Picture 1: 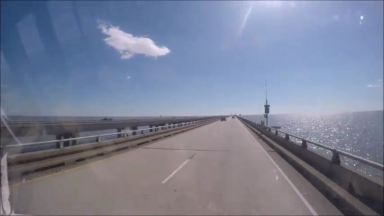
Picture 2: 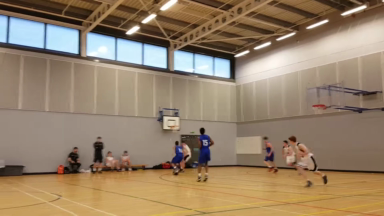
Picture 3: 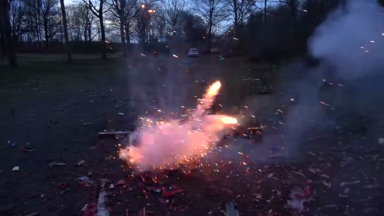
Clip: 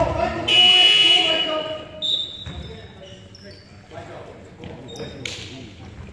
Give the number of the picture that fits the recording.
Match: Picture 2